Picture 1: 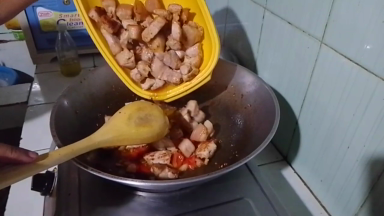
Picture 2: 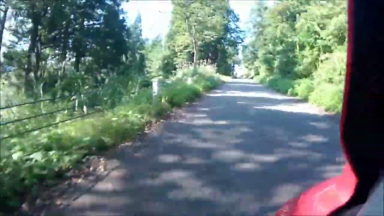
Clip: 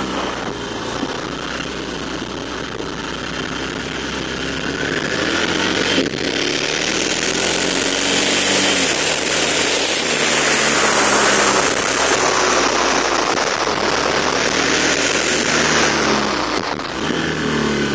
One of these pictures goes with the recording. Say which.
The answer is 2